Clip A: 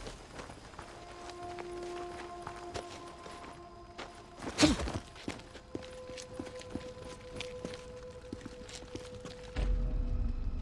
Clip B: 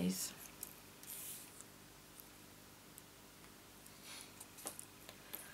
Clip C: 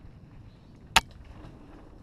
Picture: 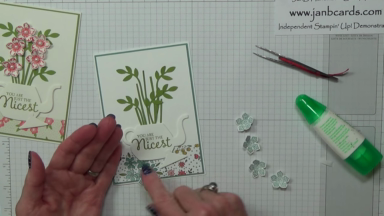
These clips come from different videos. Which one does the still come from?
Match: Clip B